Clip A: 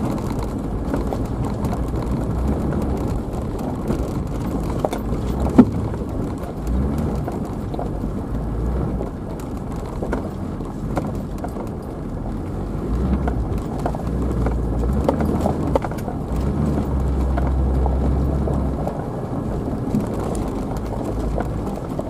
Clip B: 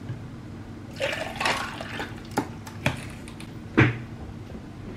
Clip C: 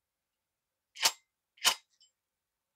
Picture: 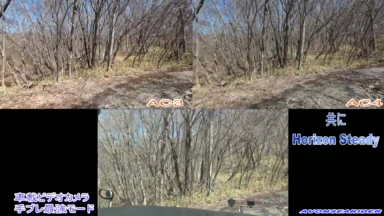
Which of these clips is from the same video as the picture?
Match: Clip A